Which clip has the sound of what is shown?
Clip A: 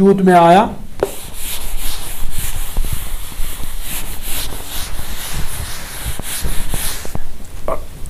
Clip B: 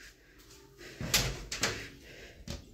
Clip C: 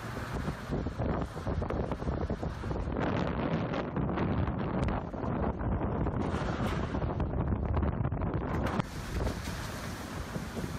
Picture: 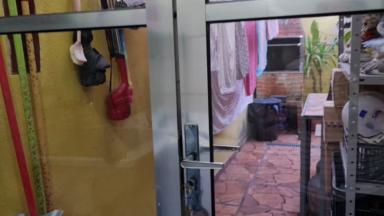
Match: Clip B